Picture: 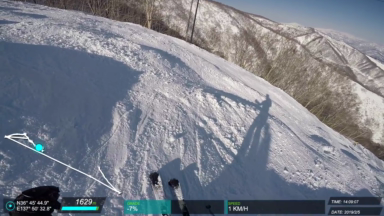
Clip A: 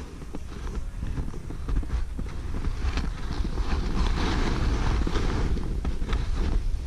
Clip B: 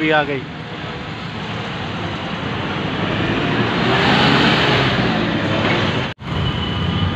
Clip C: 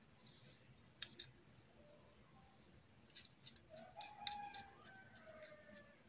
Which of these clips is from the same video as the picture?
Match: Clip A